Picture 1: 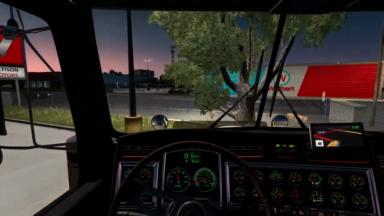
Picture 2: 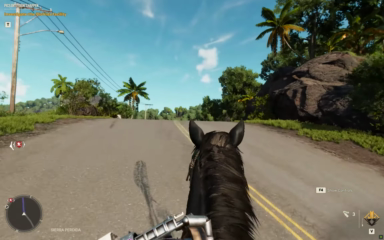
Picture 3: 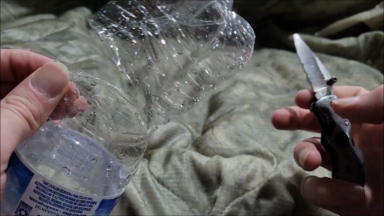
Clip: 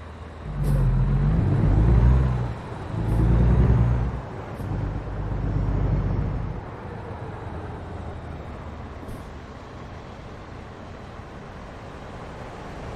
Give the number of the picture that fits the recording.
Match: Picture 1